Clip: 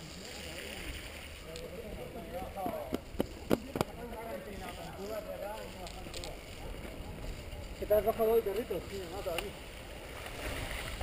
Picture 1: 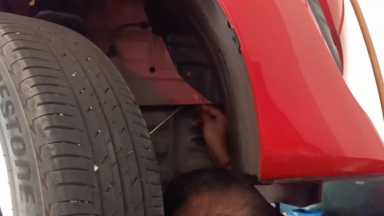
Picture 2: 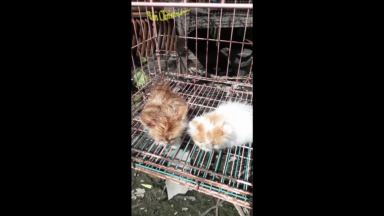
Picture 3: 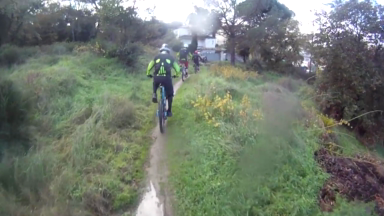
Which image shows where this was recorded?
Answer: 3